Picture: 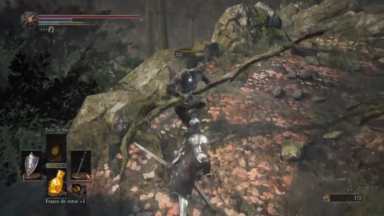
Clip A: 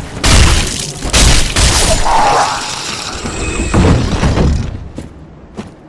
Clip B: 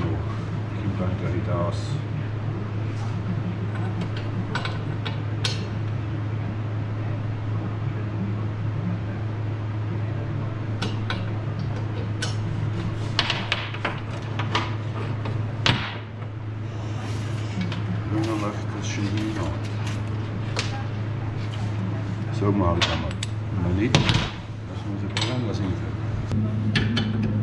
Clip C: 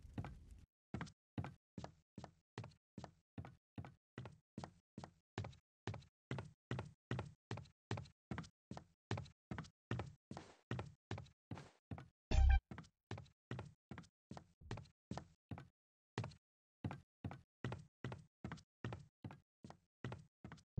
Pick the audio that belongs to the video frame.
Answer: A